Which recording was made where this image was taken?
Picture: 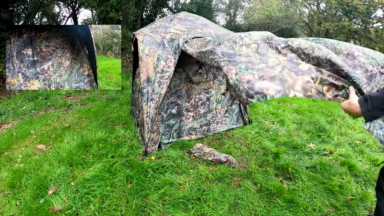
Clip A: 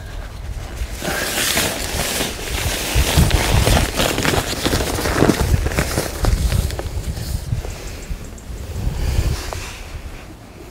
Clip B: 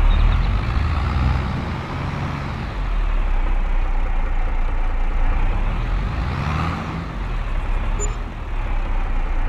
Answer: A